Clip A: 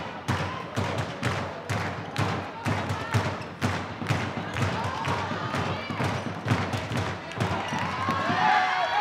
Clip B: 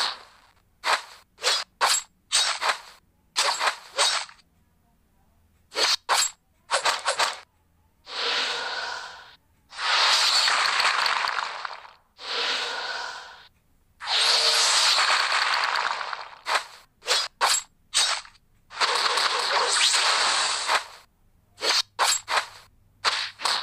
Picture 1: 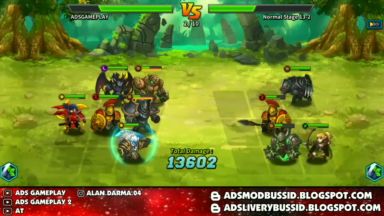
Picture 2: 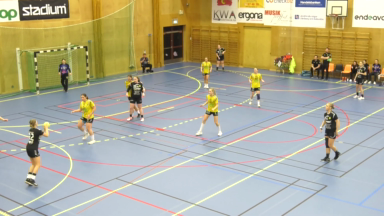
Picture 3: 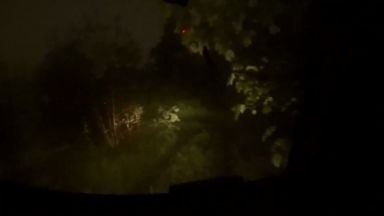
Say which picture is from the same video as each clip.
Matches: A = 2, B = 1